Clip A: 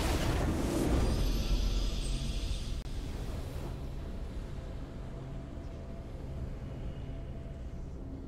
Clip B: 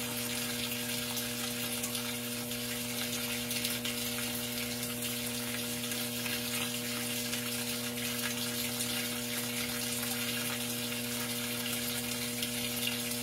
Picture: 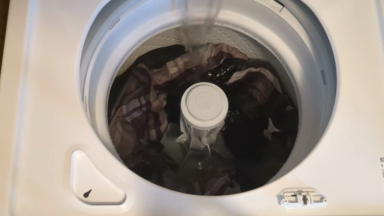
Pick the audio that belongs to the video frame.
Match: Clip B